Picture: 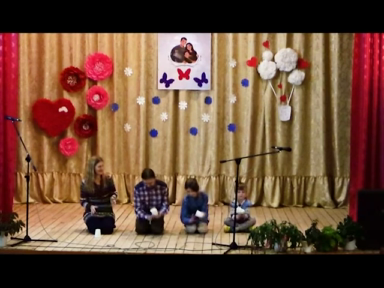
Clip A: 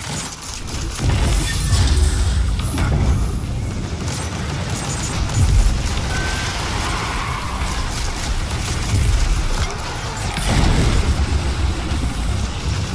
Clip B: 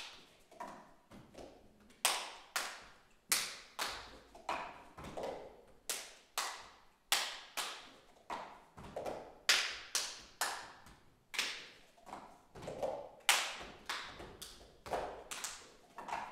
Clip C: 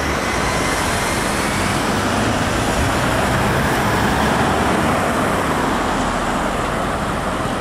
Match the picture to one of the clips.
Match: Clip B